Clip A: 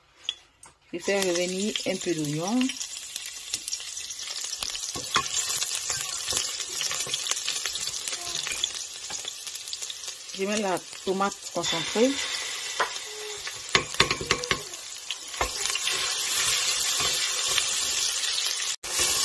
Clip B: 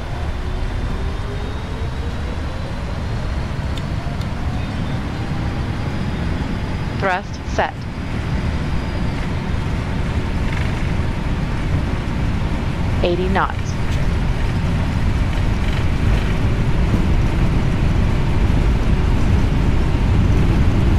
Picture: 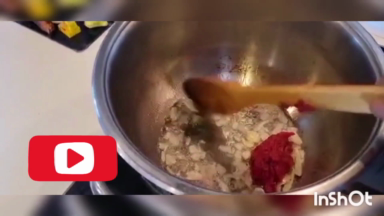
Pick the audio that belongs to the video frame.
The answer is A